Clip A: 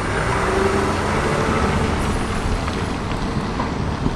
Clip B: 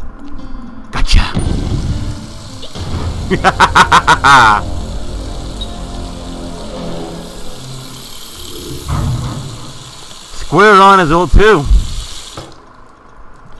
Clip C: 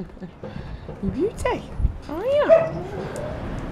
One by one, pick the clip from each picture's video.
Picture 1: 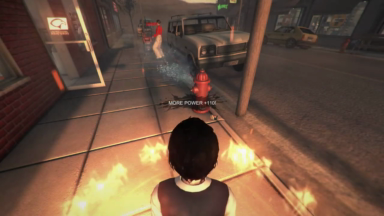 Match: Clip B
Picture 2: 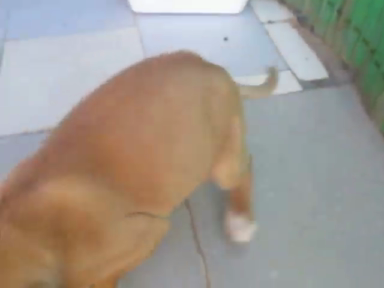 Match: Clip C